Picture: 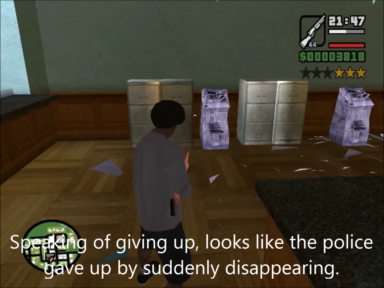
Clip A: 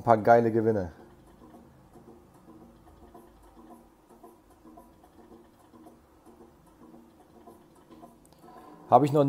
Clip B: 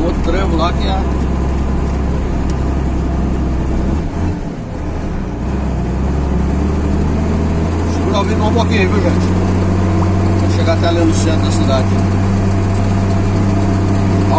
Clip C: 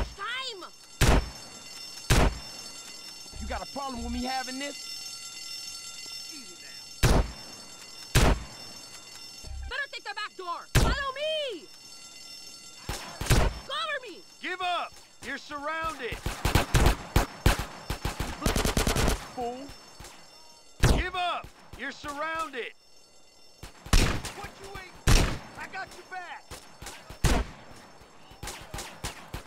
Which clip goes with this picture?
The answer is C